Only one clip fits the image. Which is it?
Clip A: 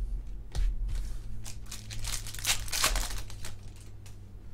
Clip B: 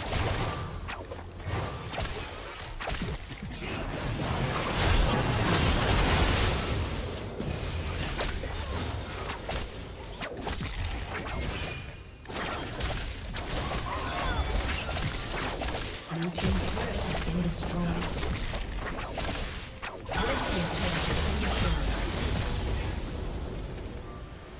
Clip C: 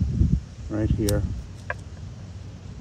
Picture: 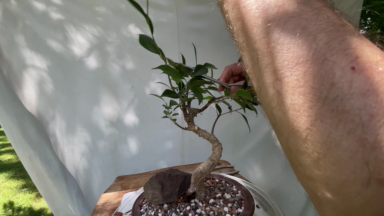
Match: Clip C